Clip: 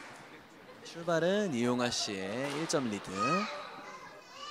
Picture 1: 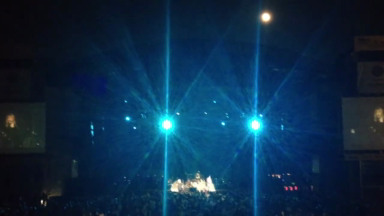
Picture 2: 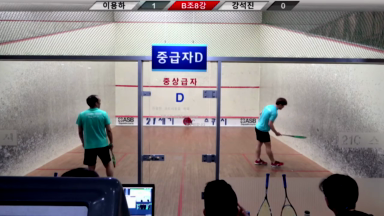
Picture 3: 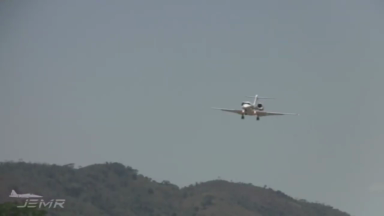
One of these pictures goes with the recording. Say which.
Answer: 2